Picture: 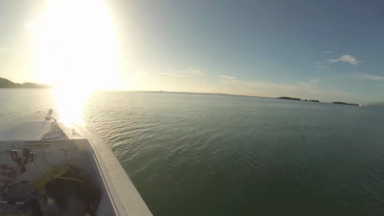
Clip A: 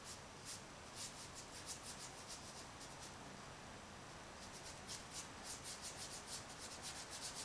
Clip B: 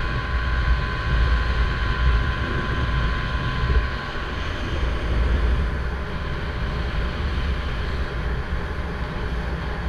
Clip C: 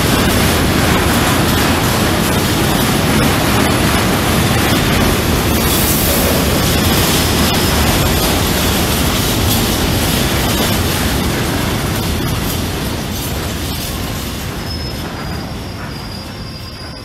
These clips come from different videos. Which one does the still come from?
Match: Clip B